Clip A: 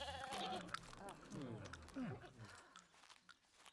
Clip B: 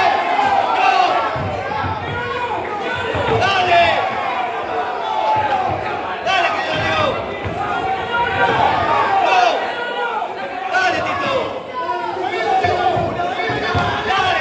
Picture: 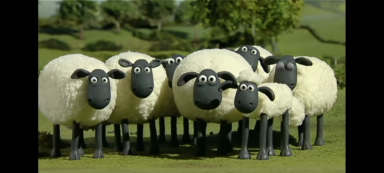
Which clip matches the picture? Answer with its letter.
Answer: A